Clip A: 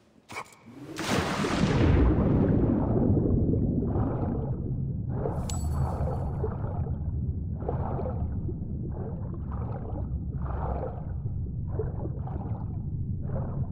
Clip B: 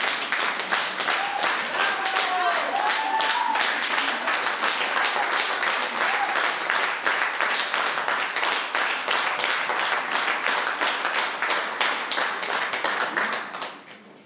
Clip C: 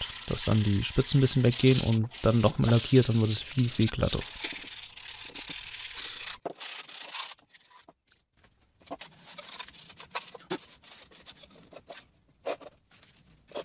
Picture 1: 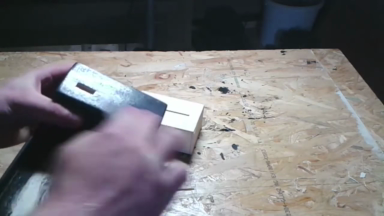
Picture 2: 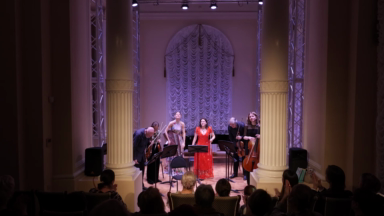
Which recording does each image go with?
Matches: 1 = C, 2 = B